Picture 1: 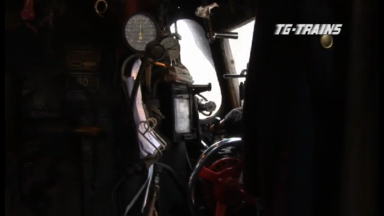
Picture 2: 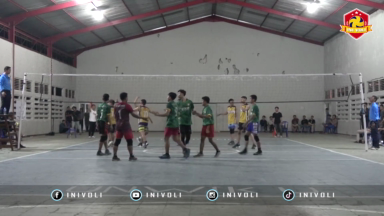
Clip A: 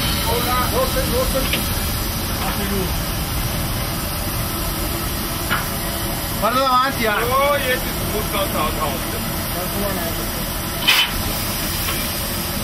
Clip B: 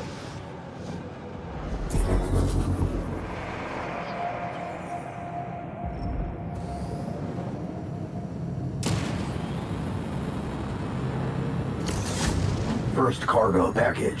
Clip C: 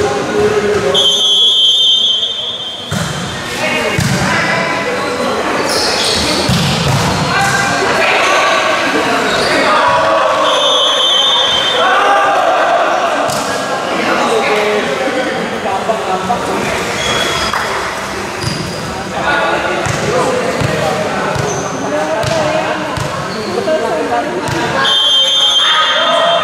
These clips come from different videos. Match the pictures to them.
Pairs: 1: A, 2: C